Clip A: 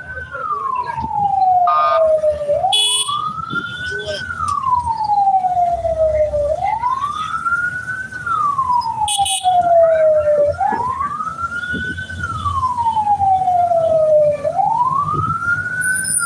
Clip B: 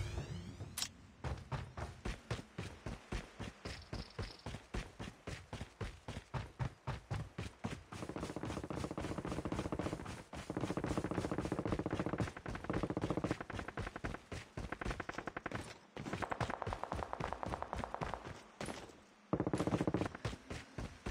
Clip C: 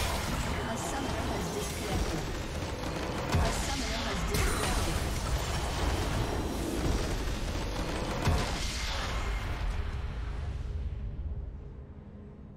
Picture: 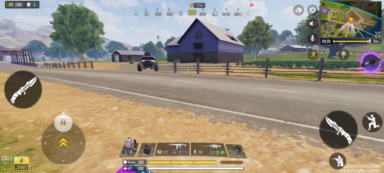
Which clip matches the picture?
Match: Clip B